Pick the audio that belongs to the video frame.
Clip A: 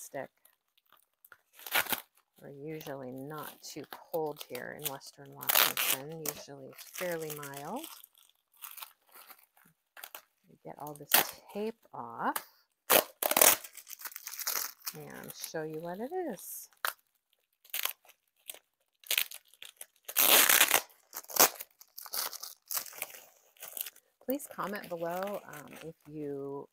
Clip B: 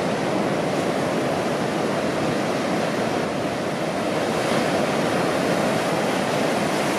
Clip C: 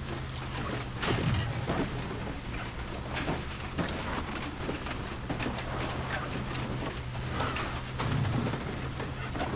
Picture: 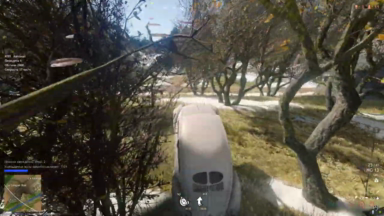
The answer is C